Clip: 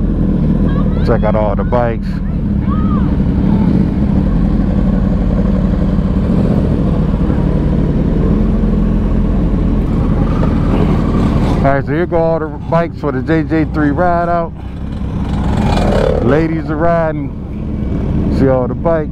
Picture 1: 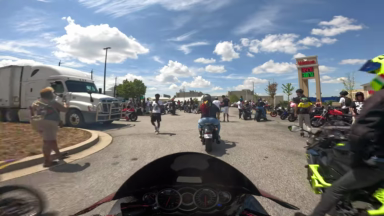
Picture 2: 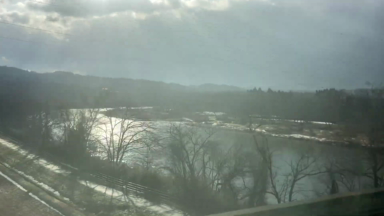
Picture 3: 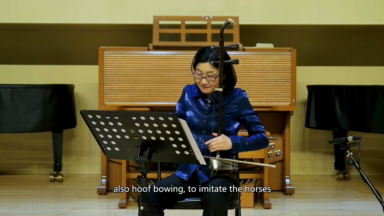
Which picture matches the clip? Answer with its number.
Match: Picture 1